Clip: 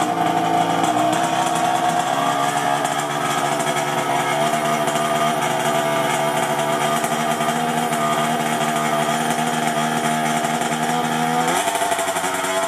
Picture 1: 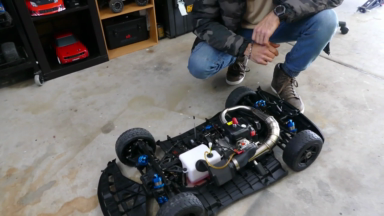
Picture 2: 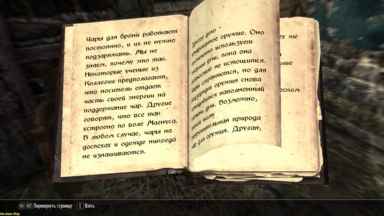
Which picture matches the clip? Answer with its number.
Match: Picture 1